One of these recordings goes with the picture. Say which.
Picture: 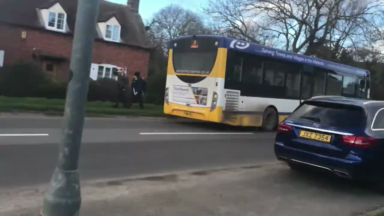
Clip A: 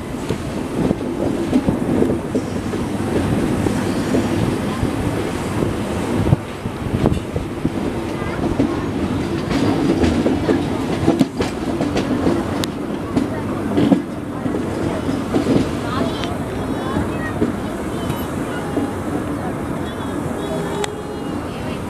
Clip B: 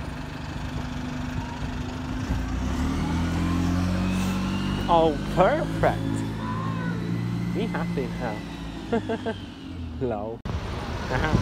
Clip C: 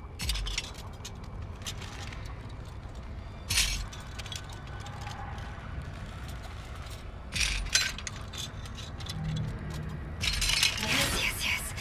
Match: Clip B